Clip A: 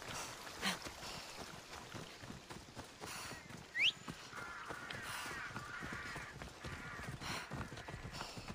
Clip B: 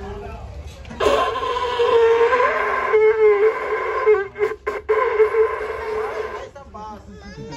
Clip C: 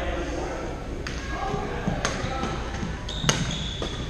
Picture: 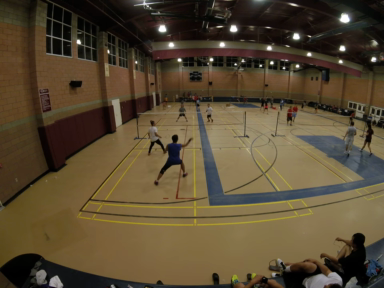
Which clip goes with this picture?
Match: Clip C